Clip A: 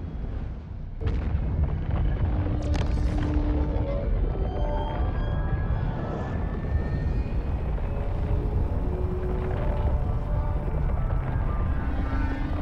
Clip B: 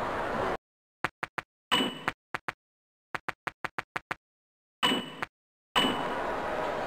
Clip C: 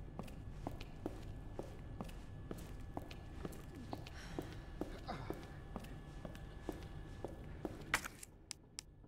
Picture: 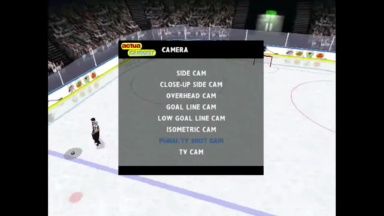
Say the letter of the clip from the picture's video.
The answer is B